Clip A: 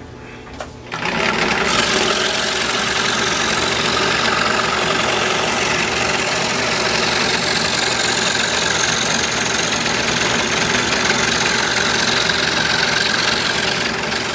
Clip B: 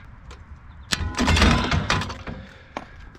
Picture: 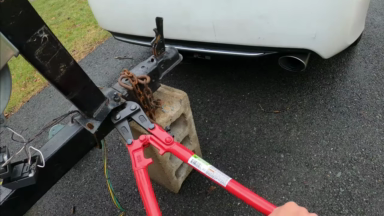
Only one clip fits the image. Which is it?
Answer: B